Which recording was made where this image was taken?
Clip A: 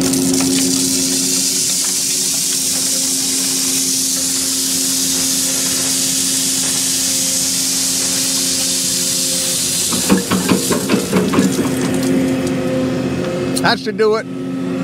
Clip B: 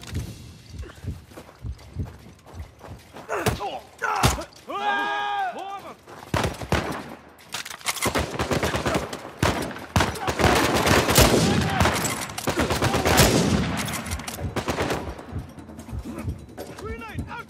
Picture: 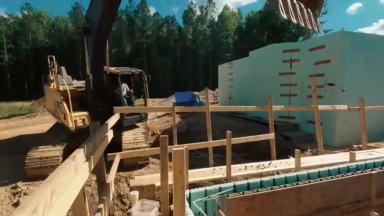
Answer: A